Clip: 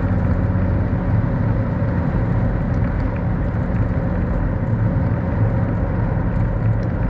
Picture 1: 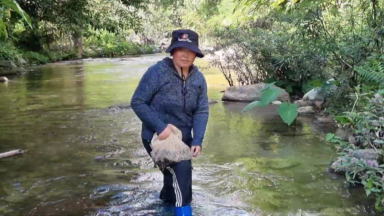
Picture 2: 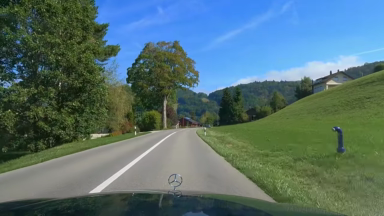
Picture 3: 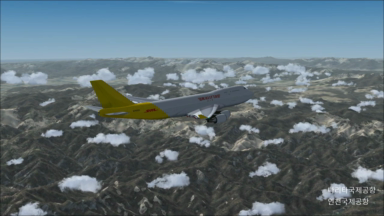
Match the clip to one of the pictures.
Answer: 2